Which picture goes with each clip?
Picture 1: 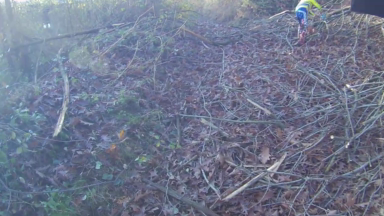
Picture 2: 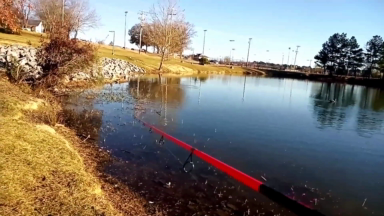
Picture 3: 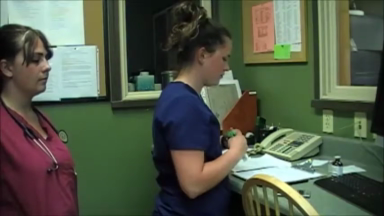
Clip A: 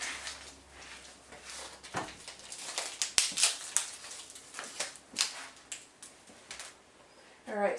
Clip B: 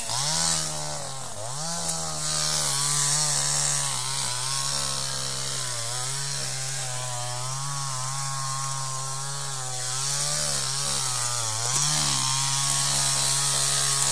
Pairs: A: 3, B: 1